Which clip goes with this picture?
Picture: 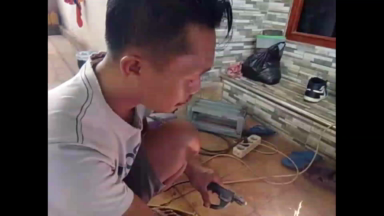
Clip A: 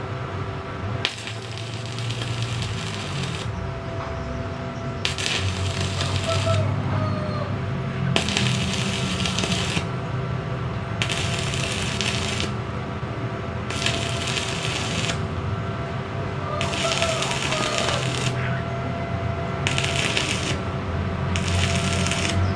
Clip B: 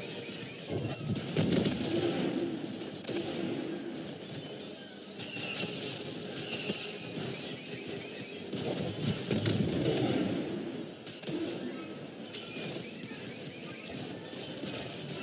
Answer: A